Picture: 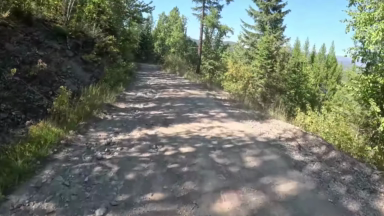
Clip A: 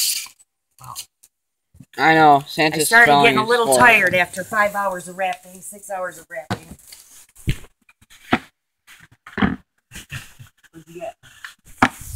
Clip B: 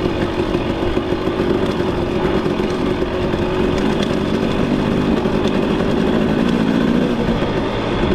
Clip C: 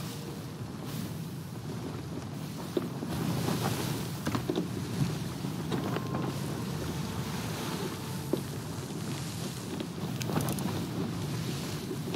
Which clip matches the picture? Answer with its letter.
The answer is B